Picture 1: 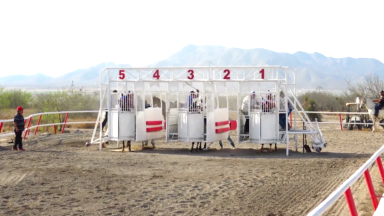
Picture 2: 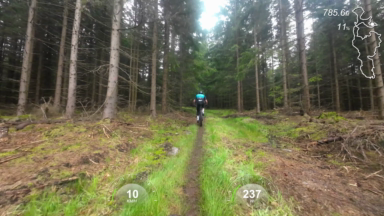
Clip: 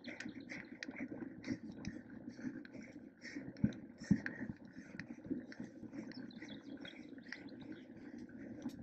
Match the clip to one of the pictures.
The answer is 2